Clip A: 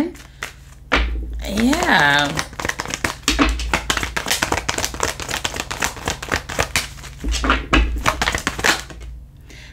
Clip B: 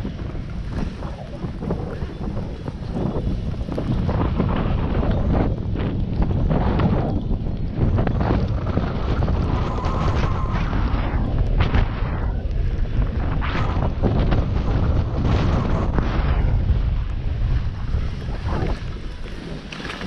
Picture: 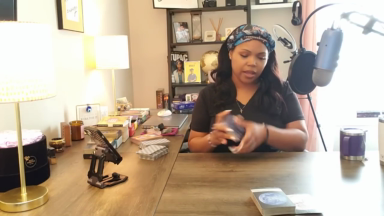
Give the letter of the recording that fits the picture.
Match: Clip A